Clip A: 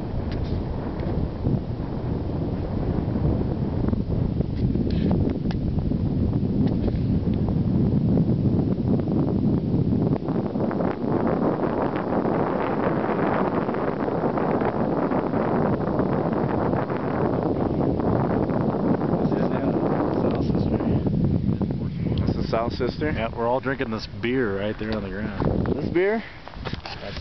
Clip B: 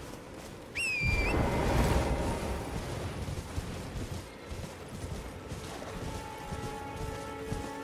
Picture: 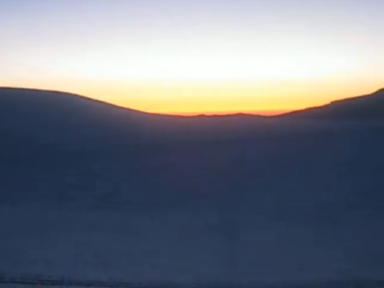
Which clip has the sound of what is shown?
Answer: A